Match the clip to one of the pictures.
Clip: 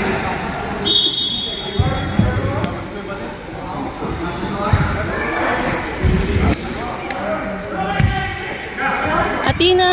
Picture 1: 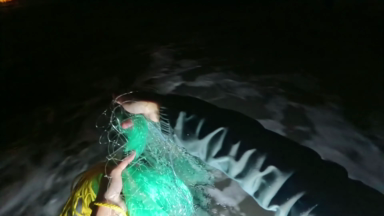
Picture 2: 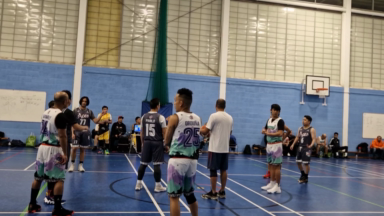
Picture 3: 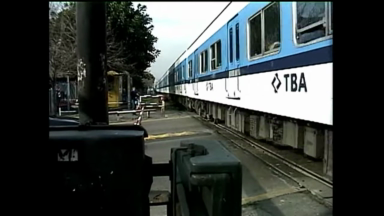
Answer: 2